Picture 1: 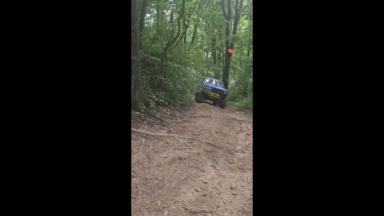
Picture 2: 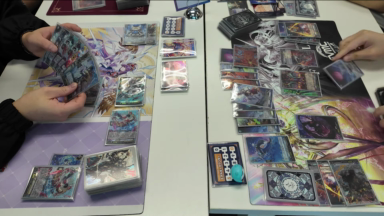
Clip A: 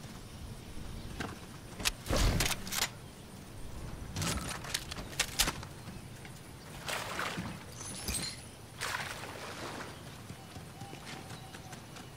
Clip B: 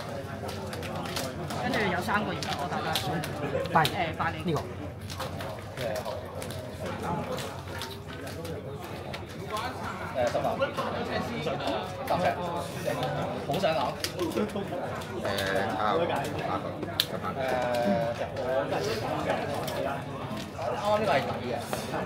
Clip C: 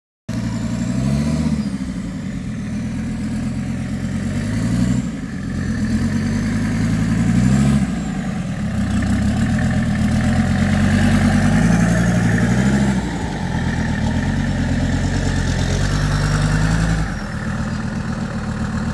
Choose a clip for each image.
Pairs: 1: C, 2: B